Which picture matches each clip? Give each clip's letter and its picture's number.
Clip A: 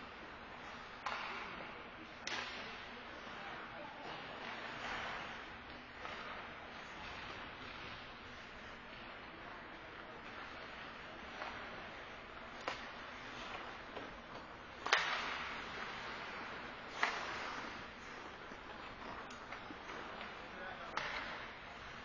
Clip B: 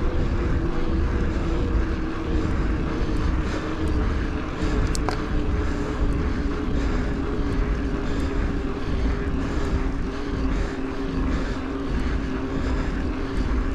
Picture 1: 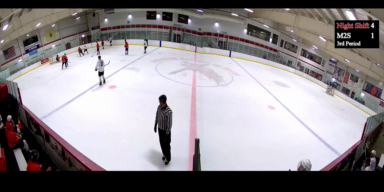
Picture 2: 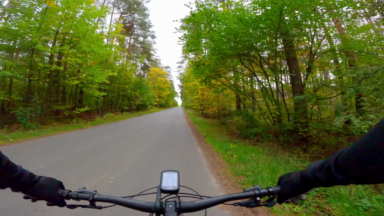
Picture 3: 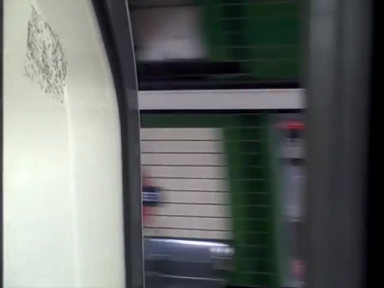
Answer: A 1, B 2